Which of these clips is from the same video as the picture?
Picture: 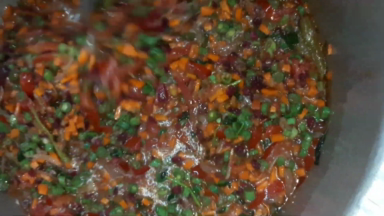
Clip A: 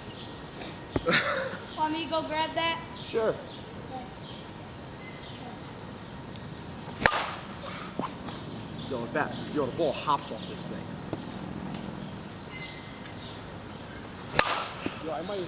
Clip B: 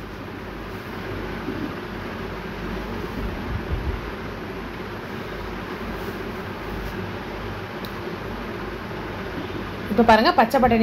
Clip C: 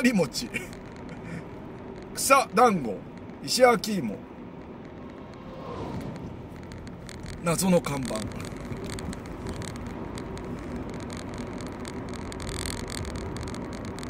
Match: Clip B